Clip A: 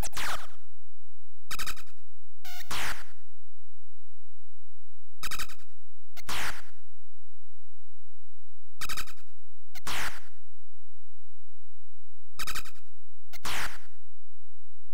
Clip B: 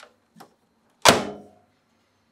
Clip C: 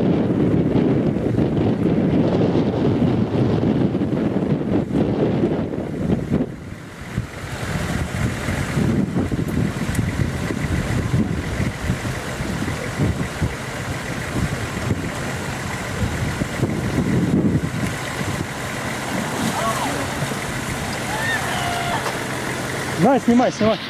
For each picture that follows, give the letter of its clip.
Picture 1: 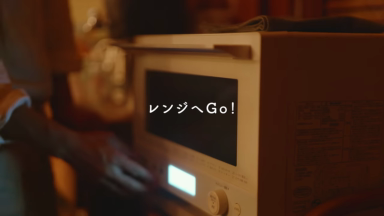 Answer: B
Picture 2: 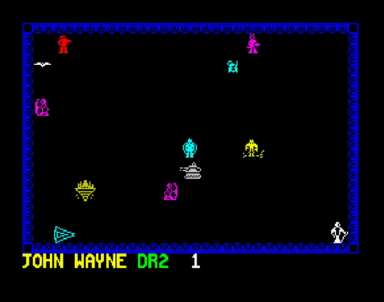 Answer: A